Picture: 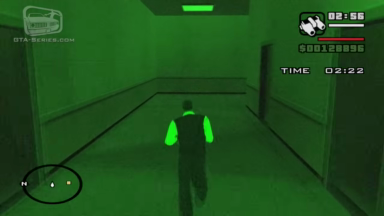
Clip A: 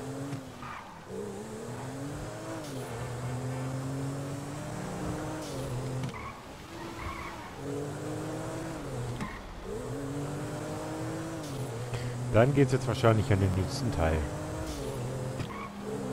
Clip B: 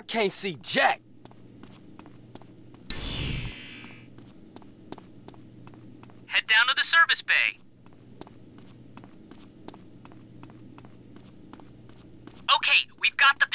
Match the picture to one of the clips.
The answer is B